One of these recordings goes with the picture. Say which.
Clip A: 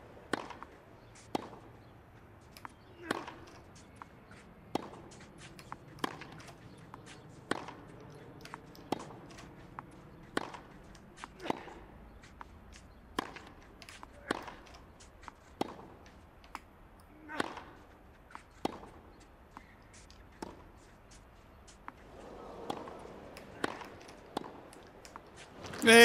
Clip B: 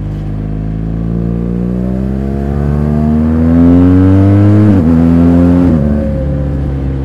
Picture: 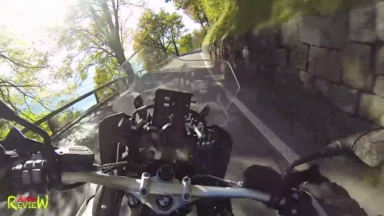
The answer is B